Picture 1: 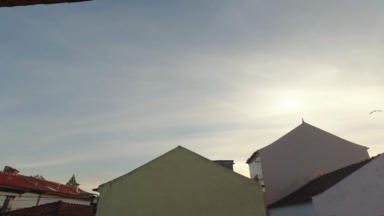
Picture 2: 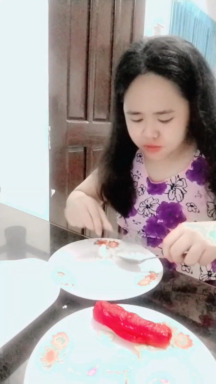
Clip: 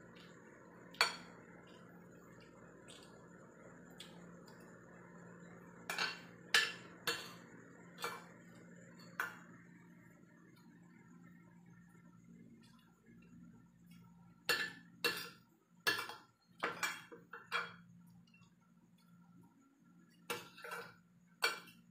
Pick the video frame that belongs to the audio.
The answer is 2